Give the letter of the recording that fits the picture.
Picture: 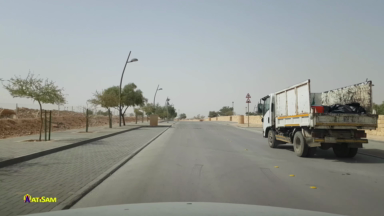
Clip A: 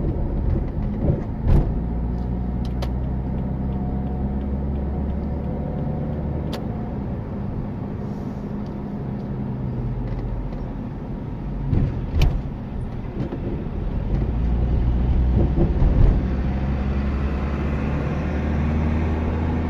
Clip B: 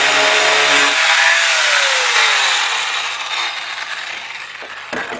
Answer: A